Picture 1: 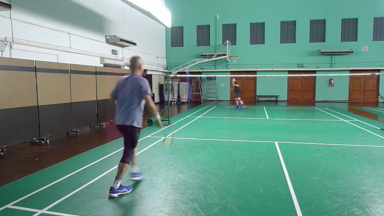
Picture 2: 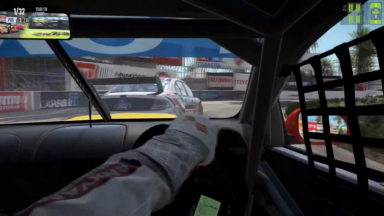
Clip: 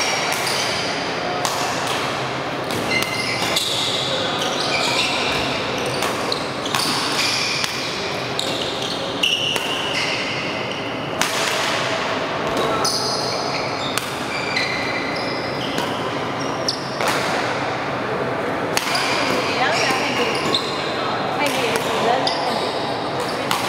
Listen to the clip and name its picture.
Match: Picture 1